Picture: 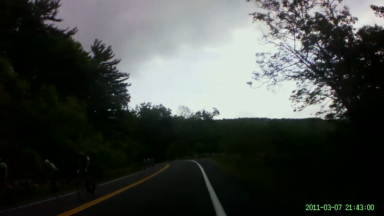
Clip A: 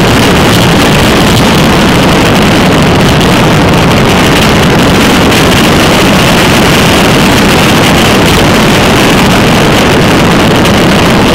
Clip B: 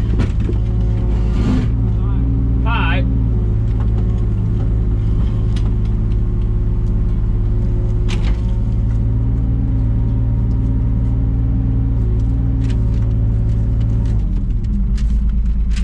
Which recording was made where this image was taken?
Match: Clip A